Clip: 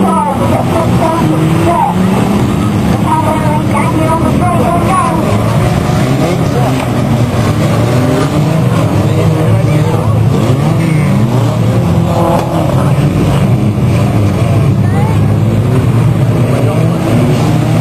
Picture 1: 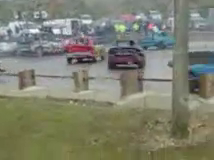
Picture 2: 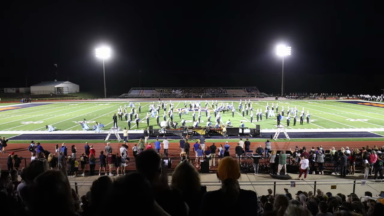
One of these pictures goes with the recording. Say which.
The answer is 1